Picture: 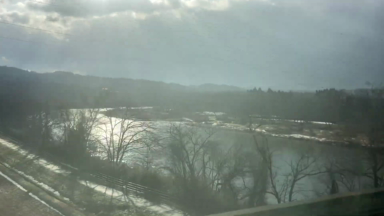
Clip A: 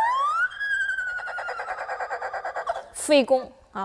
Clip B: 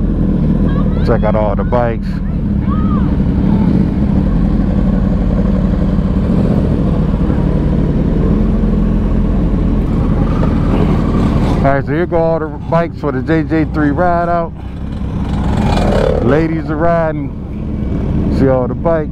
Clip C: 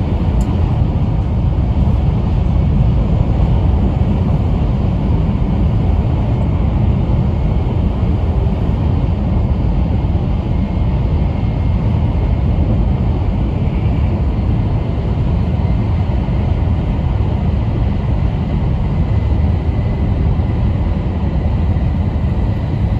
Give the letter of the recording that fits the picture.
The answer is C